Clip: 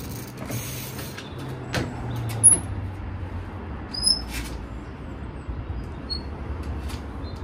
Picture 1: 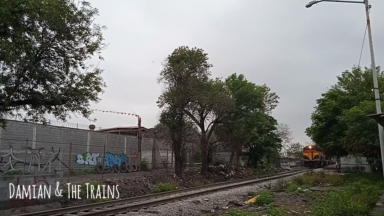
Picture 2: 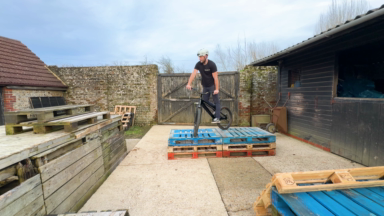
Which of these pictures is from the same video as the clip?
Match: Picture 2